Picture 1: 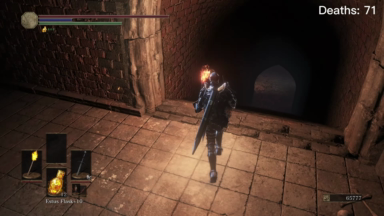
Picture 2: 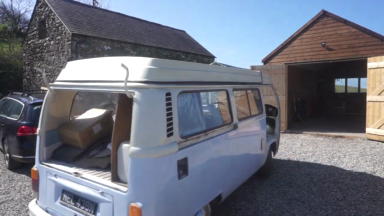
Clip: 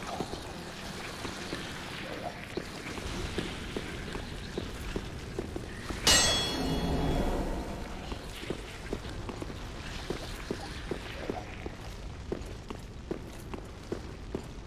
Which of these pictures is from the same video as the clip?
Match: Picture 1